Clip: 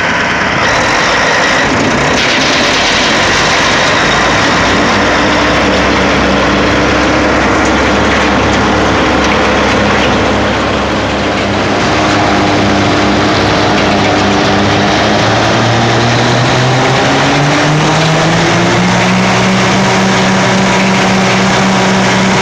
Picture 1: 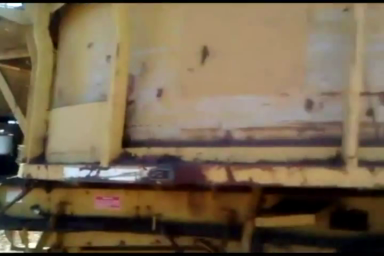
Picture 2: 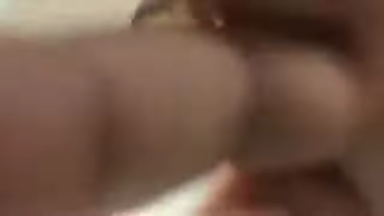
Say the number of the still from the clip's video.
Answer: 1